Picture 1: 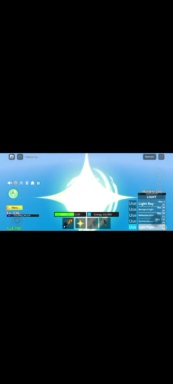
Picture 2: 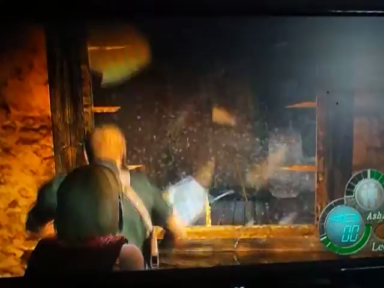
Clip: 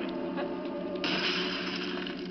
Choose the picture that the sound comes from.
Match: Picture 2